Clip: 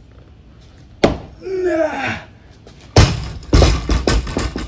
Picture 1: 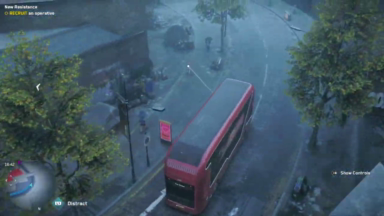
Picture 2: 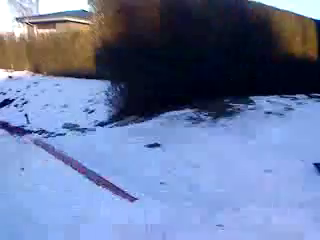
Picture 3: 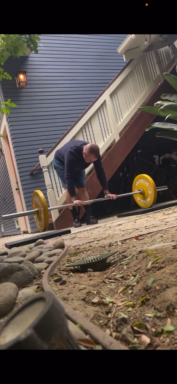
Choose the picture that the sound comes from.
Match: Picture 3